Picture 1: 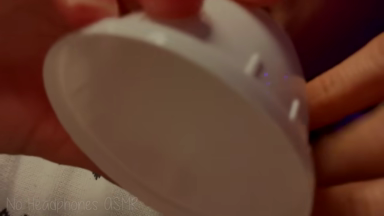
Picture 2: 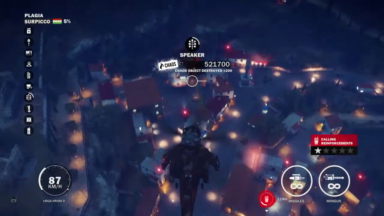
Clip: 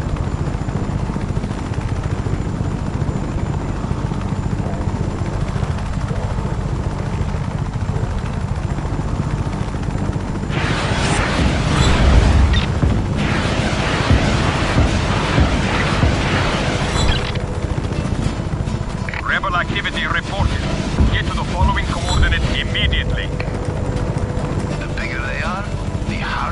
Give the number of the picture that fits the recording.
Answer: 2